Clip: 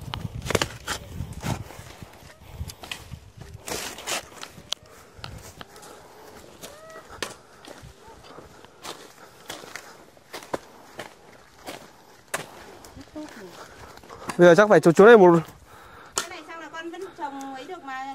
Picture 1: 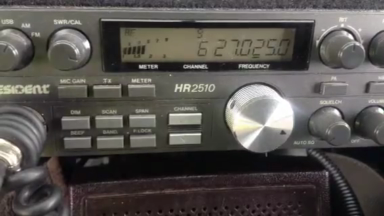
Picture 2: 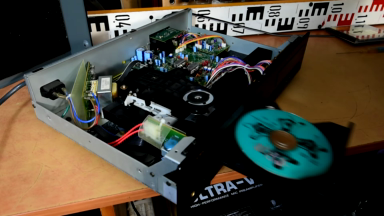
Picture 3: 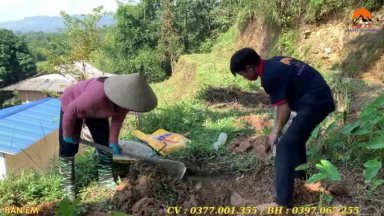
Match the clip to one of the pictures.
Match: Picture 3